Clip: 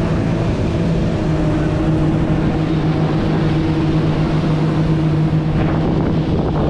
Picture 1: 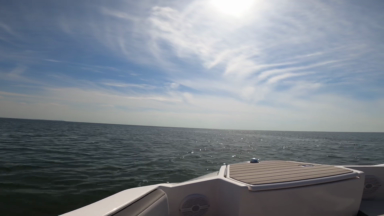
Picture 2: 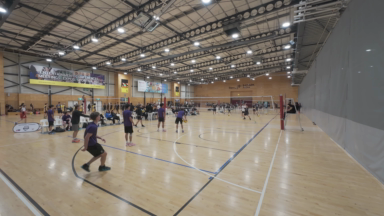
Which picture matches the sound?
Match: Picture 1